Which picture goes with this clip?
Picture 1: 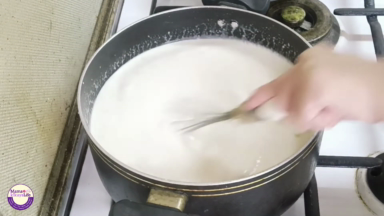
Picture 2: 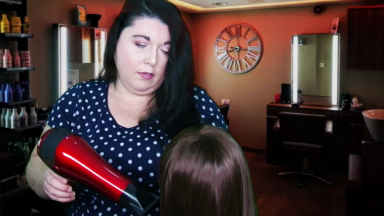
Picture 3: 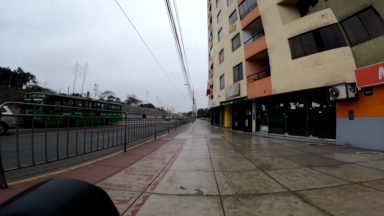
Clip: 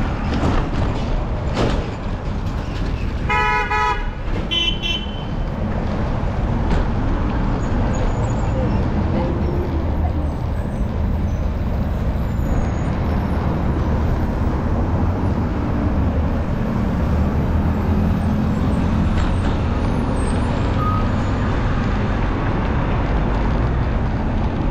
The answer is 3